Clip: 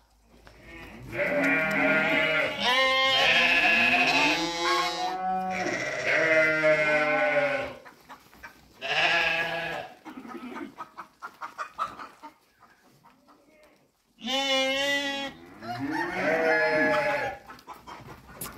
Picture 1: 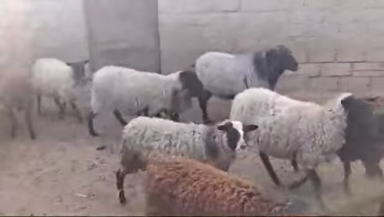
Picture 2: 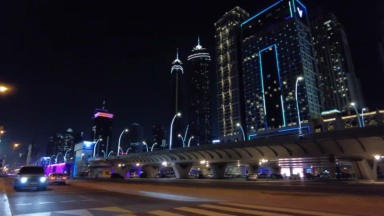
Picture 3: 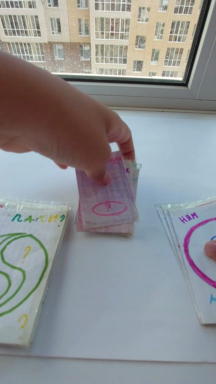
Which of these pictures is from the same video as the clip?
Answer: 1